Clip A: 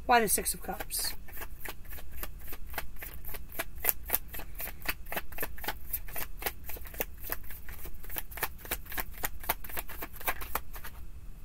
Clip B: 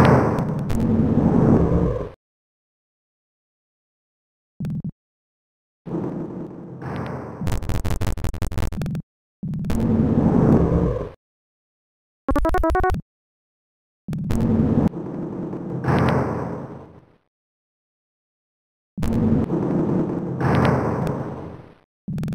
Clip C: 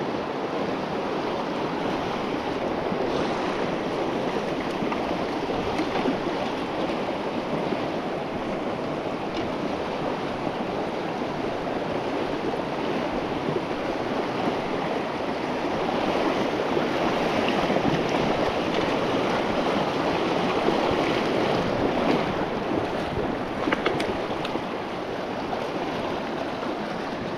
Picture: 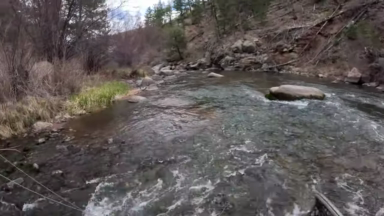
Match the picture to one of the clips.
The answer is C